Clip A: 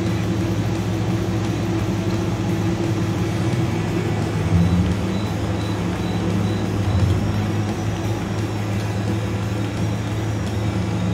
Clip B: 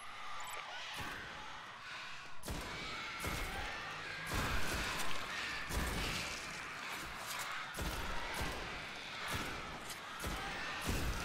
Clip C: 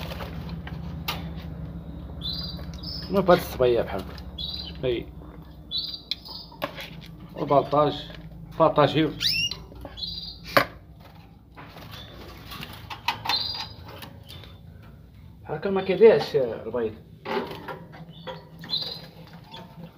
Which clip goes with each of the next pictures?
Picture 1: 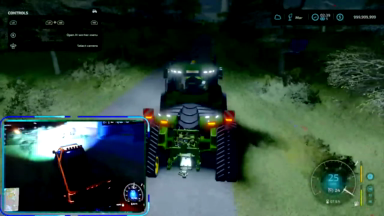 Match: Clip A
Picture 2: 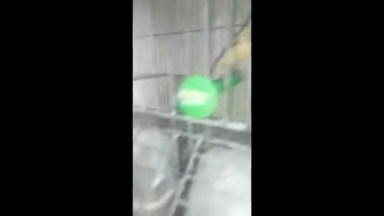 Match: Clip C